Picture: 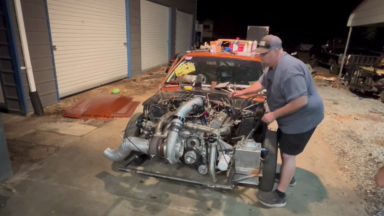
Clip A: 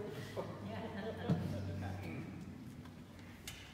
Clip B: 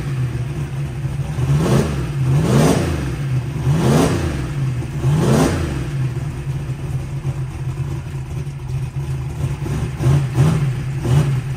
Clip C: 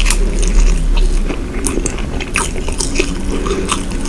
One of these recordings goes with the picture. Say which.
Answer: B